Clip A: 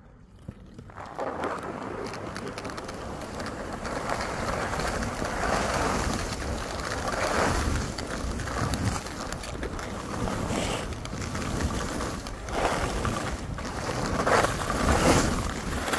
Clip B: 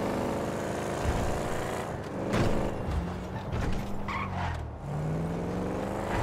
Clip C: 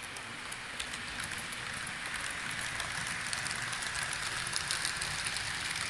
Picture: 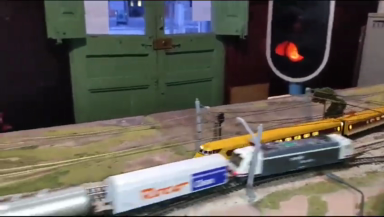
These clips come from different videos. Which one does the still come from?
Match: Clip C